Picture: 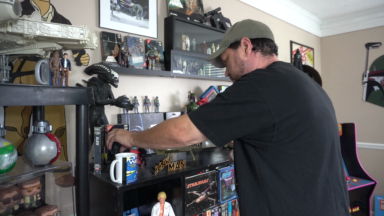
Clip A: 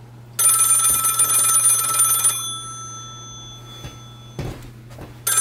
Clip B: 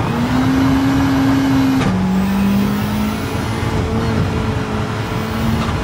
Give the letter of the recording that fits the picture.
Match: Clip A